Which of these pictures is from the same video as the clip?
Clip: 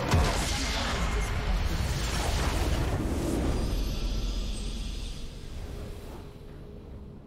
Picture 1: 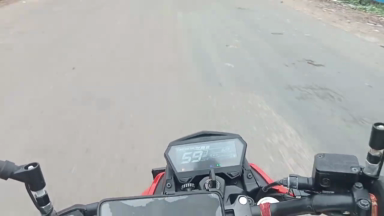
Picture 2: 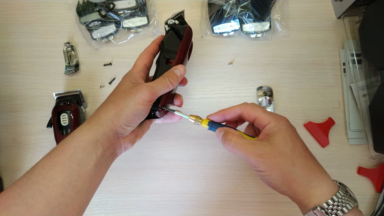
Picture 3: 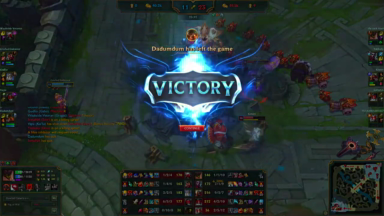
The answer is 3